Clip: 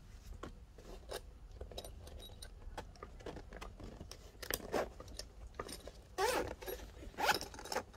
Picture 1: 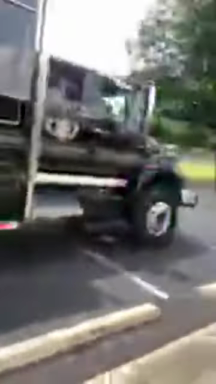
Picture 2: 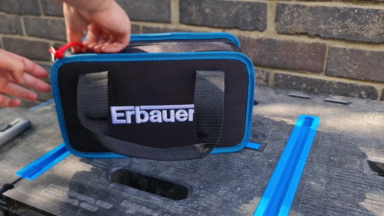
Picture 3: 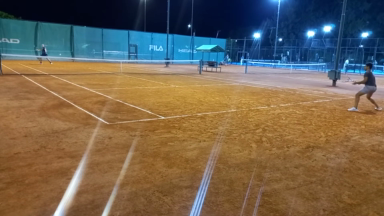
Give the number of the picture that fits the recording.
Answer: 2